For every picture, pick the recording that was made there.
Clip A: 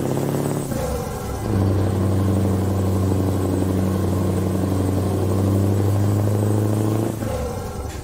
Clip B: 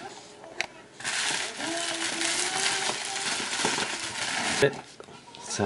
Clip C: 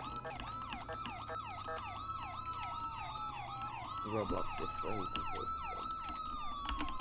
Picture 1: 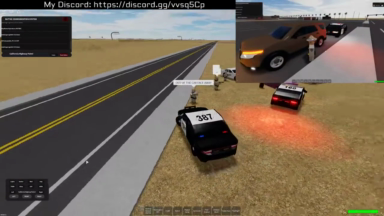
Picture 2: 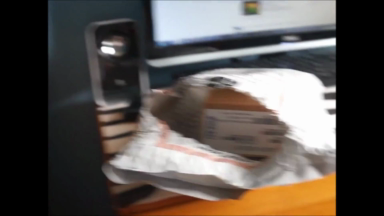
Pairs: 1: C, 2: B